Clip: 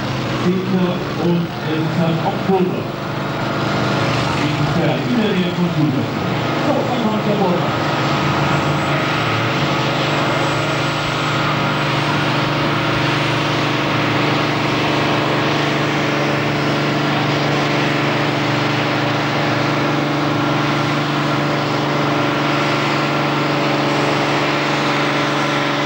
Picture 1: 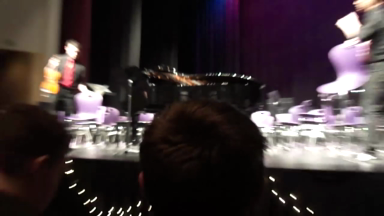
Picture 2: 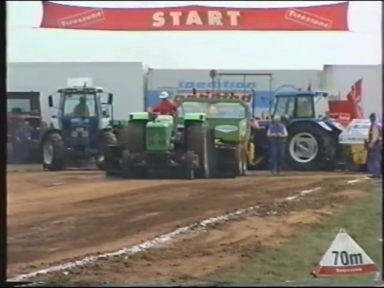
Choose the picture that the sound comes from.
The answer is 2